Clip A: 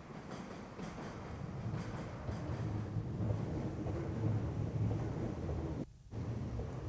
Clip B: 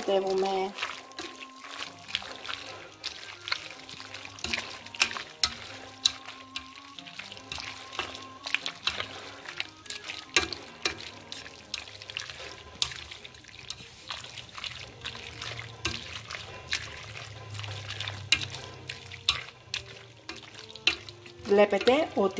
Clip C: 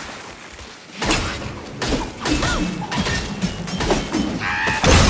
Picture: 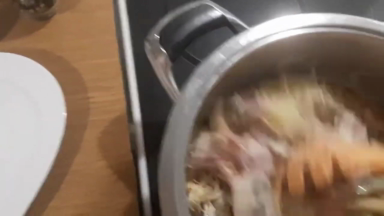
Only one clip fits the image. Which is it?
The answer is B